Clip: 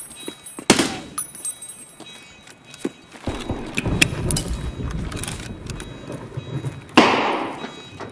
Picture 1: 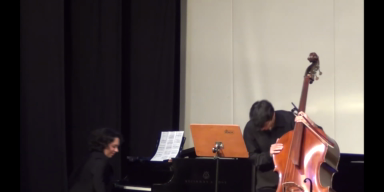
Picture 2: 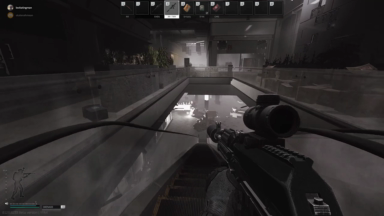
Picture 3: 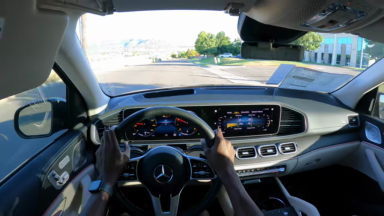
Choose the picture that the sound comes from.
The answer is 2